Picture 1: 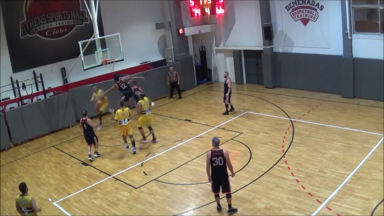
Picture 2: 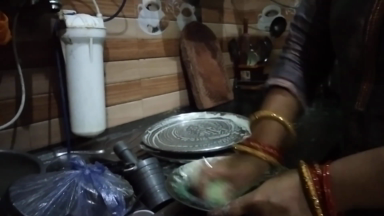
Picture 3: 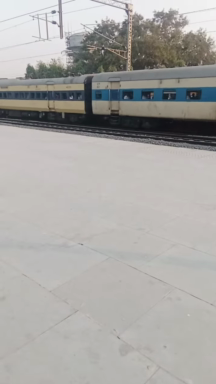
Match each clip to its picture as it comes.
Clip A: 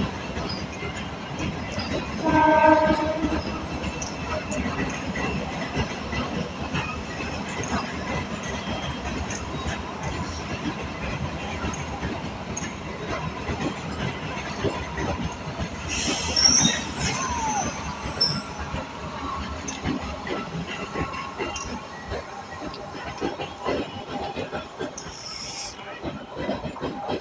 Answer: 3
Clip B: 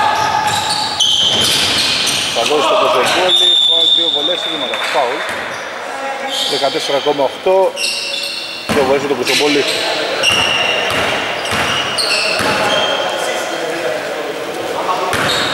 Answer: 1